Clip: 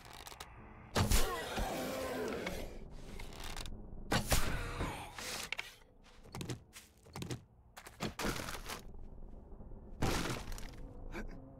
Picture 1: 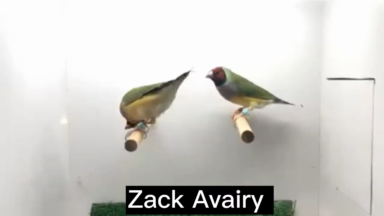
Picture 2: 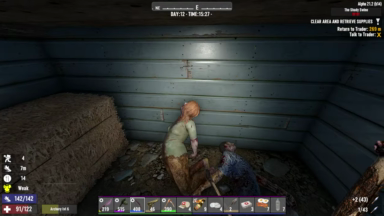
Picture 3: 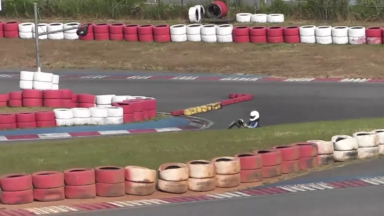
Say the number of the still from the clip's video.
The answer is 2